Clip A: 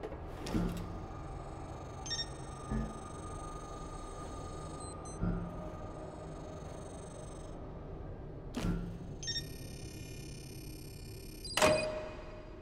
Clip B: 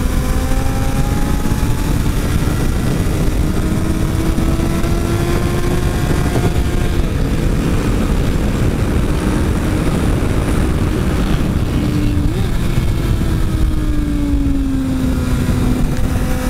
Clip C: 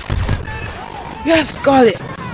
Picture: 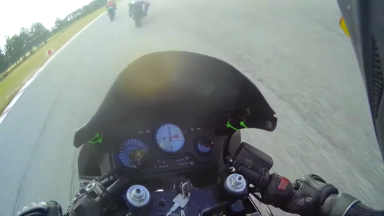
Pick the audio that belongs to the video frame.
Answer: B